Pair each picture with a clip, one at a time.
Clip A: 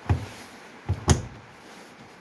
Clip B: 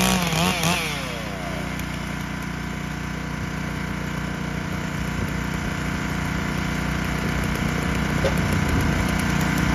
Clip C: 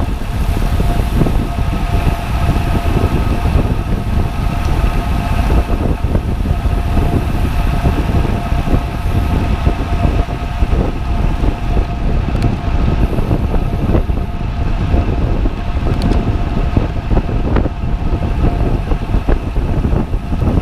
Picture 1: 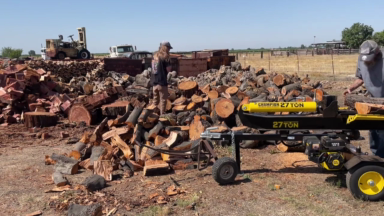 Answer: B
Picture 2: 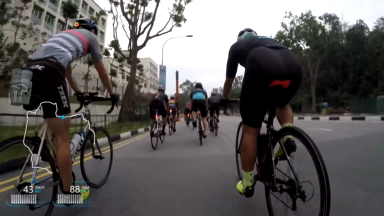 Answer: C